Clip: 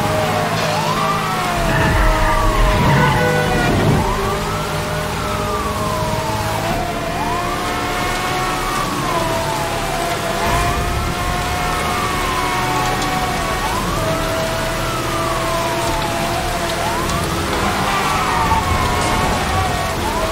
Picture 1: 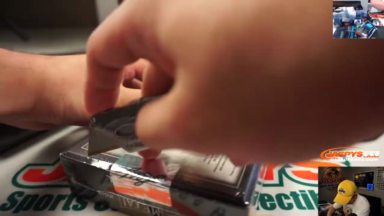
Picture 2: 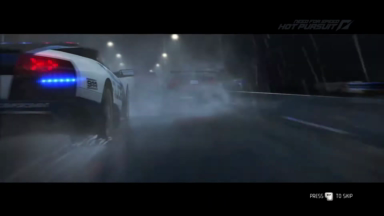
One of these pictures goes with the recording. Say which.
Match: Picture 2